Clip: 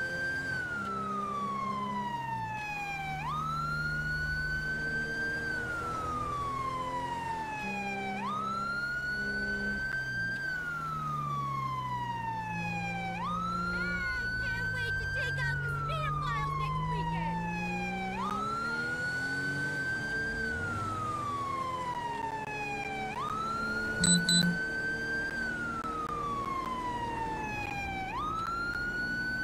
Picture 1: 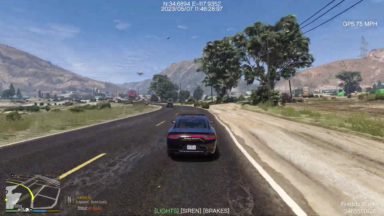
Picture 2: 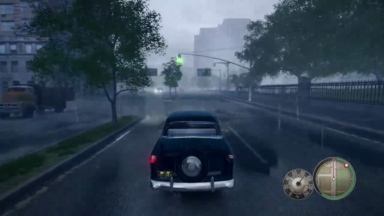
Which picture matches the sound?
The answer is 1